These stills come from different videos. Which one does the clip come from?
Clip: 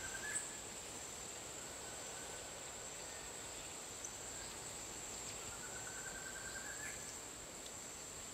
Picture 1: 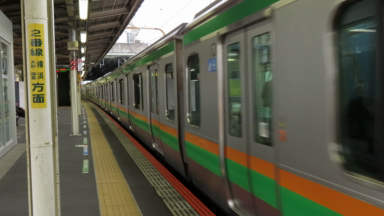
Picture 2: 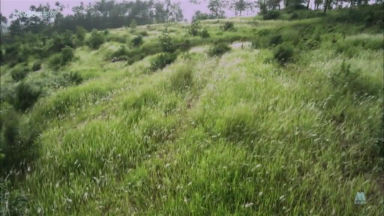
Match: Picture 2